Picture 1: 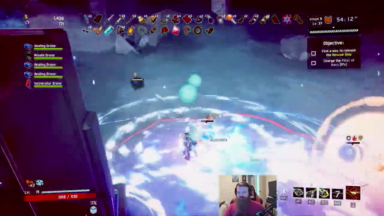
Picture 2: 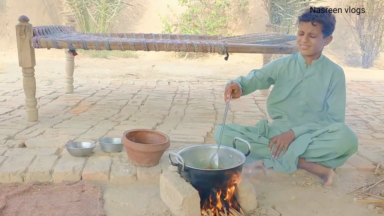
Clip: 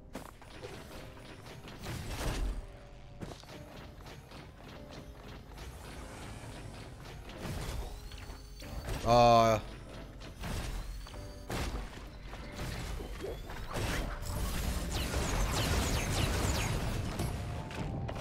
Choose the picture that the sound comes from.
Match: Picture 1